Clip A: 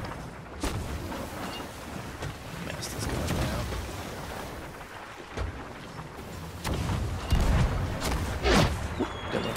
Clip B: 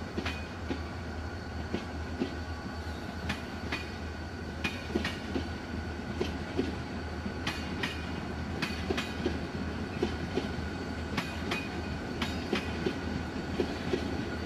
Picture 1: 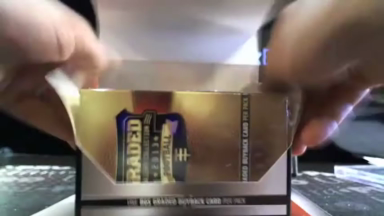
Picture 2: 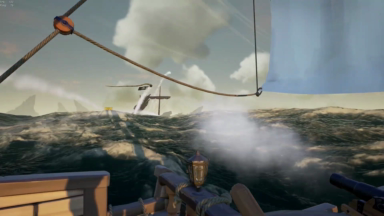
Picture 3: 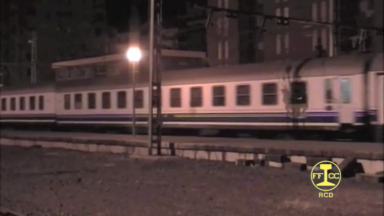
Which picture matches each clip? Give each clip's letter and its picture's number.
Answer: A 2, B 3